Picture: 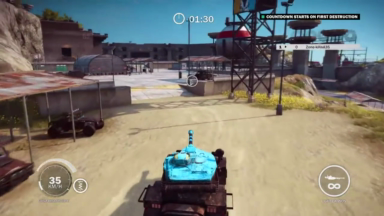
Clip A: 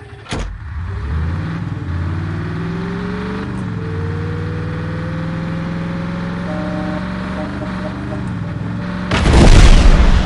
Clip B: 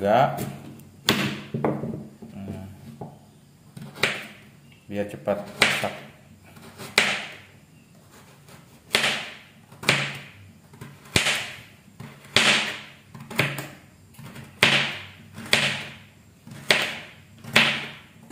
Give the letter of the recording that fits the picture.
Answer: A